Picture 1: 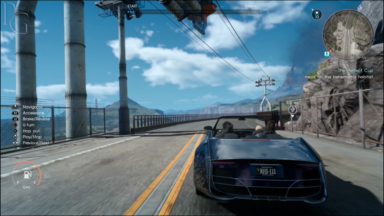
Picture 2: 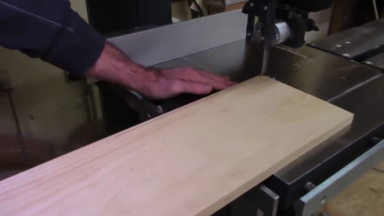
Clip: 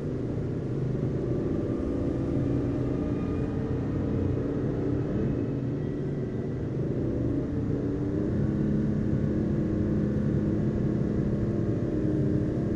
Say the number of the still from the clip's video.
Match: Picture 1